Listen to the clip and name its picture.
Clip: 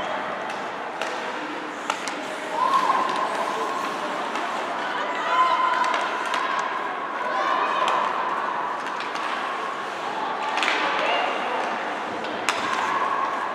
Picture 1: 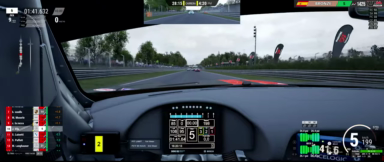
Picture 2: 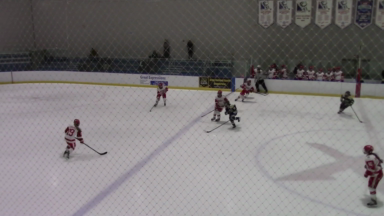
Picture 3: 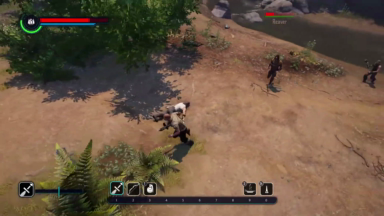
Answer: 2